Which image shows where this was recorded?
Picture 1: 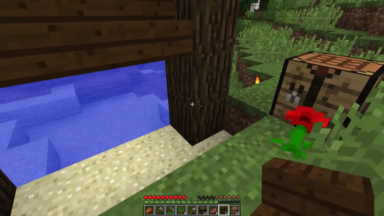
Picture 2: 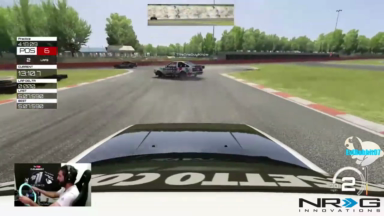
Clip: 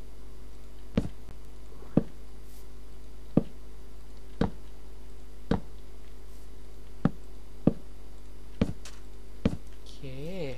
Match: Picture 1